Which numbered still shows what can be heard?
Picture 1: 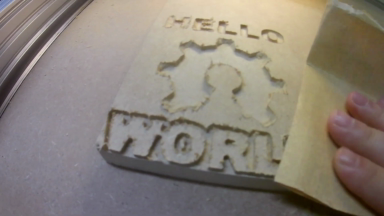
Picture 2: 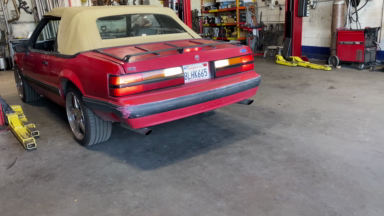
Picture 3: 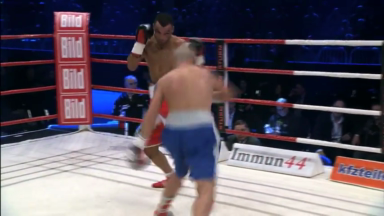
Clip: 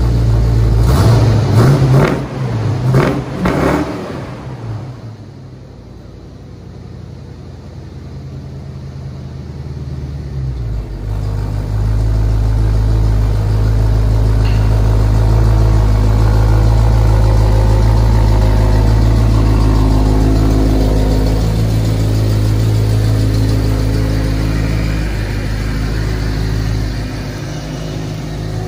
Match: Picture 2